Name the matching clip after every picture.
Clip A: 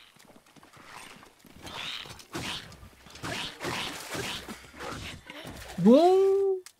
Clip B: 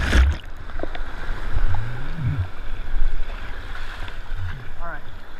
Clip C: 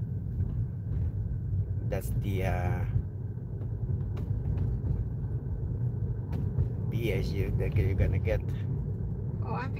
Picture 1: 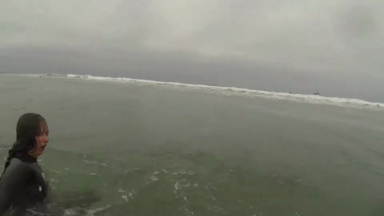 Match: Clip B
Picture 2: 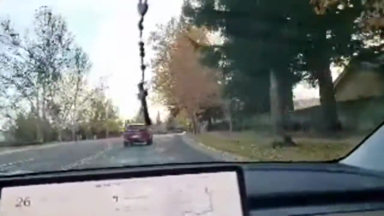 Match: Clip C